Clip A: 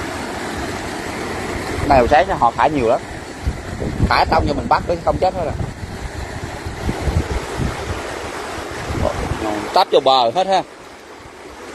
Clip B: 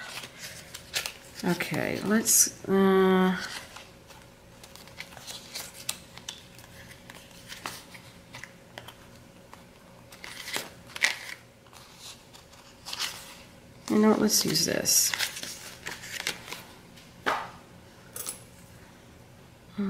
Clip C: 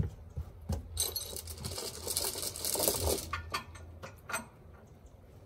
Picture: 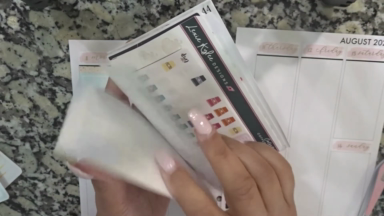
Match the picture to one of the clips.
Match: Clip B